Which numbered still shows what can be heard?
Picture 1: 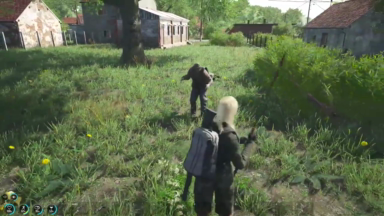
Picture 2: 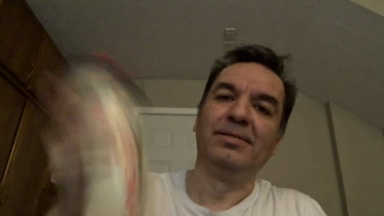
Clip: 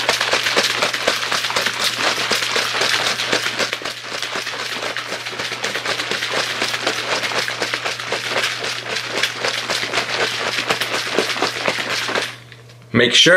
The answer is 2